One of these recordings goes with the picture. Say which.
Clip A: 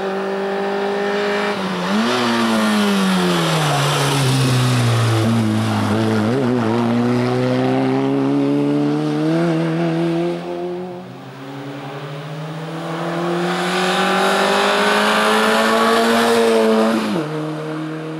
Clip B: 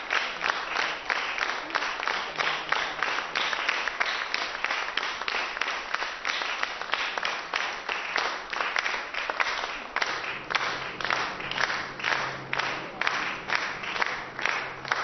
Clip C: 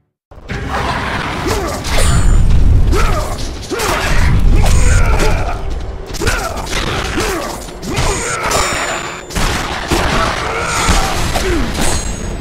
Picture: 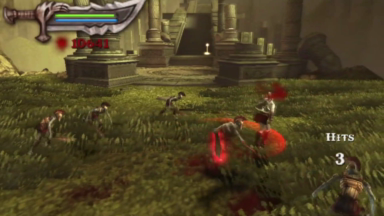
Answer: C